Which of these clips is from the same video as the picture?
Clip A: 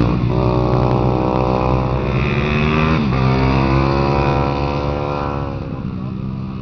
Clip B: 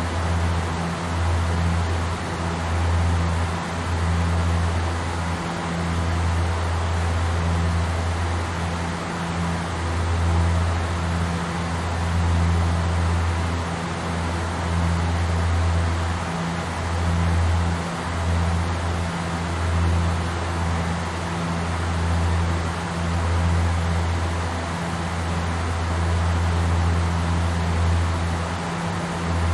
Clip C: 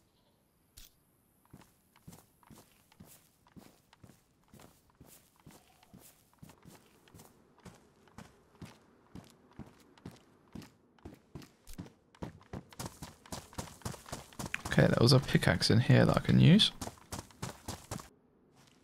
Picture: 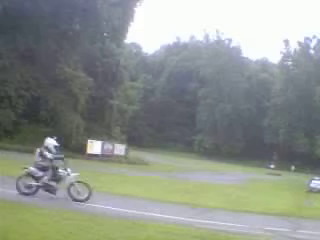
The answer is A